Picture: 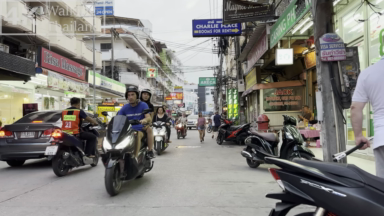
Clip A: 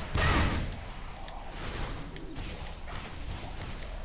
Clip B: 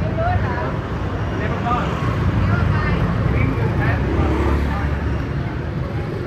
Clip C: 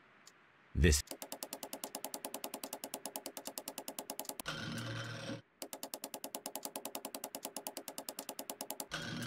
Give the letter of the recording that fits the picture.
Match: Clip B